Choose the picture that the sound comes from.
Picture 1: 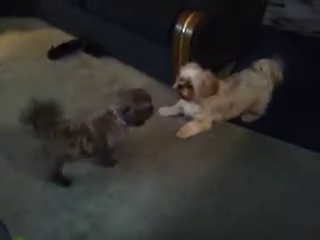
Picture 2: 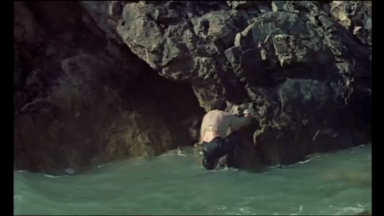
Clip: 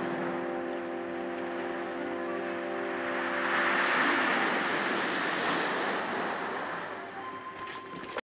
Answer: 2